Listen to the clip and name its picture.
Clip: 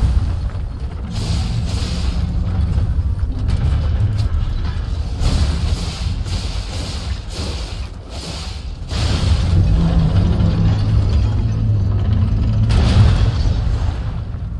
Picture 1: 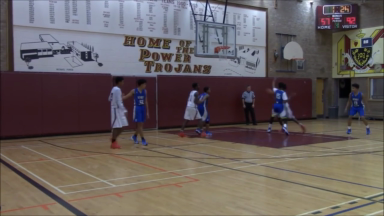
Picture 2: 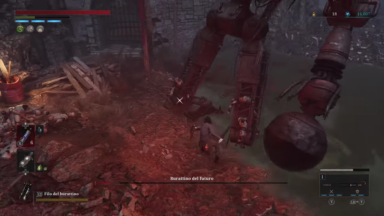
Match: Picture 2